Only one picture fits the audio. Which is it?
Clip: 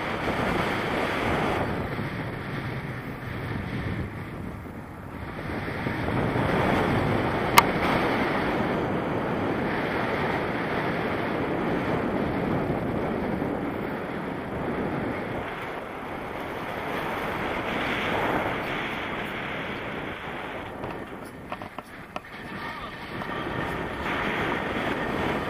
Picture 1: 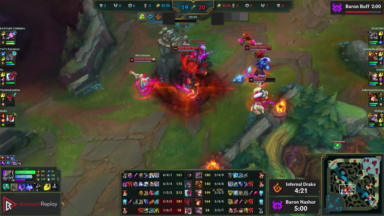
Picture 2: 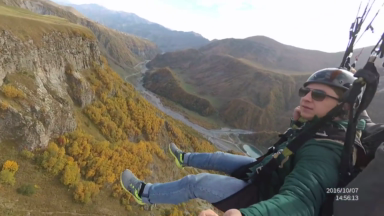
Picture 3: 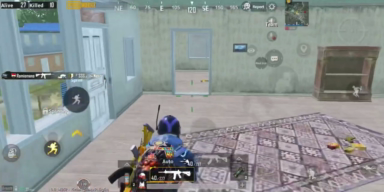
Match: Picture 2